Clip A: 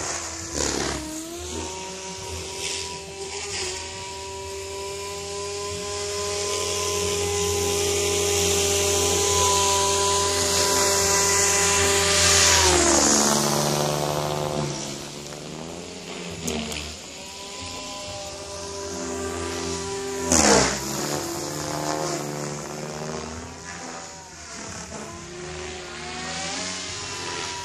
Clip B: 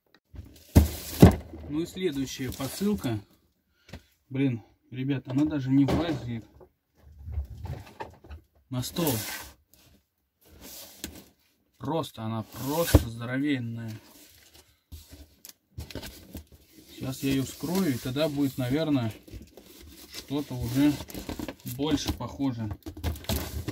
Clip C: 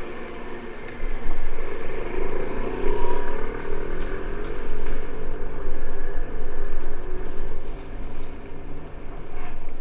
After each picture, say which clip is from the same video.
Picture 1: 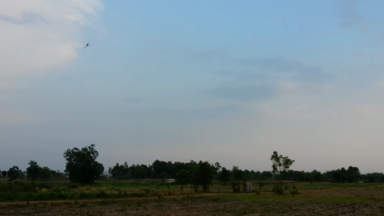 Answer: A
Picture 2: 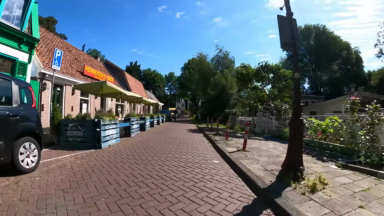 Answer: C